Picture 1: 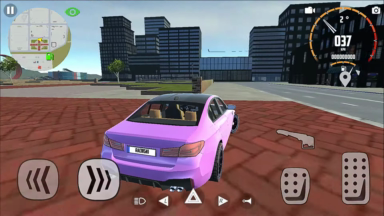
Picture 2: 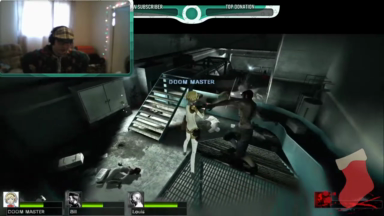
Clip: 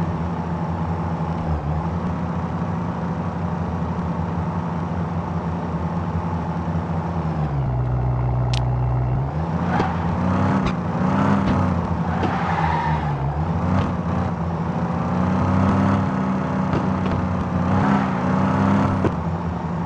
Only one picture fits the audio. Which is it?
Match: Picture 1